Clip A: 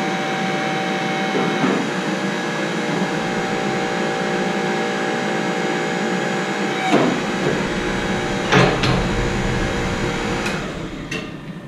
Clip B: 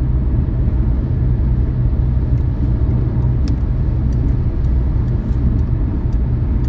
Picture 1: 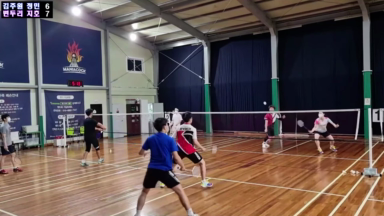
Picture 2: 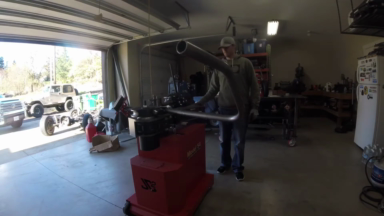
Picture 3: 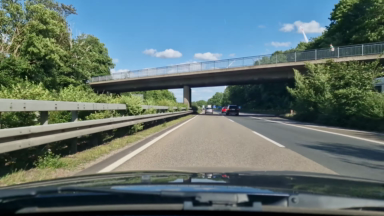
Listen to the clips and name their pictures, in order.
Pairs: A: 2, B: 3